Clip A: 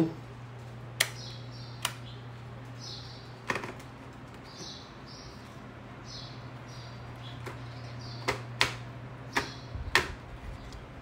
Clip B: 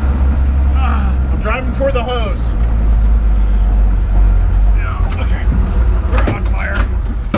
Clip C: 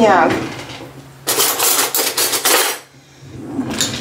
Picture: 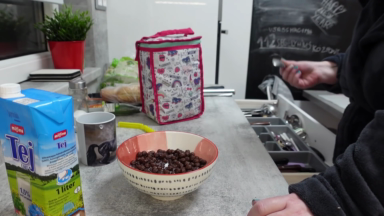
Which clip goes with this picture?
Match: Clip C